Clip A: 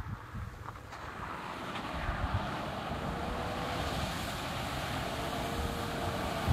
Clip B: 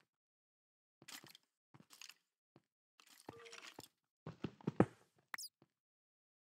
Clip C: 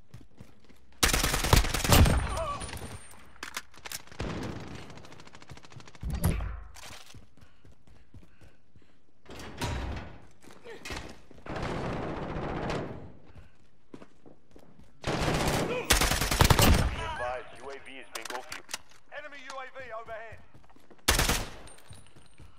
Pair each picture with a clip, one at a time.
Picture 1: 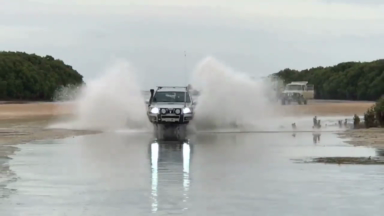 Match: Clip A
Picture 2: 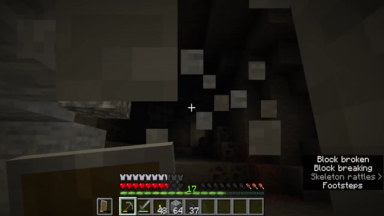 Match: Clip B